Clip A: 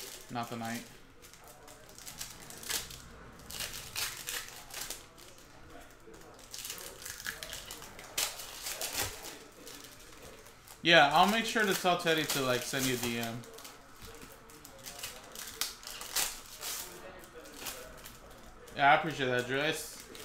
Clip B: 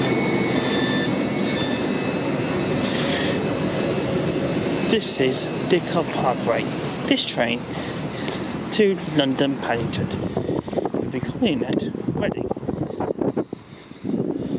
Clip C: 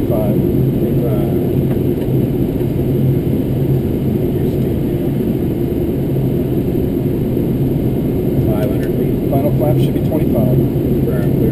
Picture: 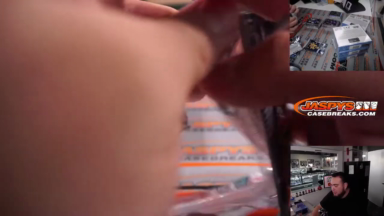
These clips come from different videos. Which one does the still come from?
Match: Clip A